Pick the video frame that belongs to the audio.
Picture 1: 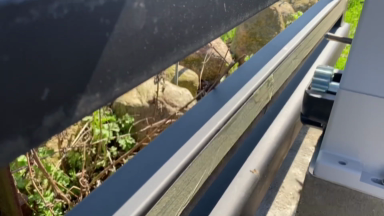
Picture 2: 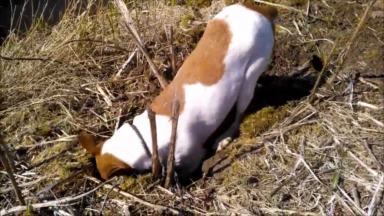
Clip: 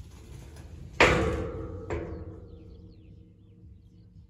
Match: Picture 1